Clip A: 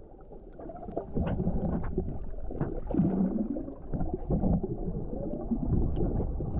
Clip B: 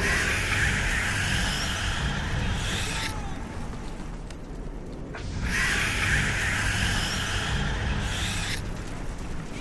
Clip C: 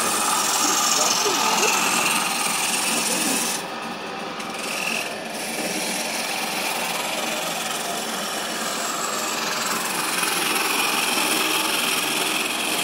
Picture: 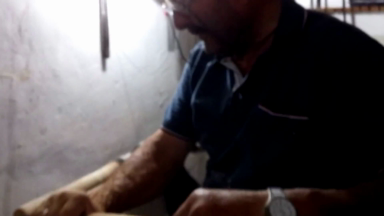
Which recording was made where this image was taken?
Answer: C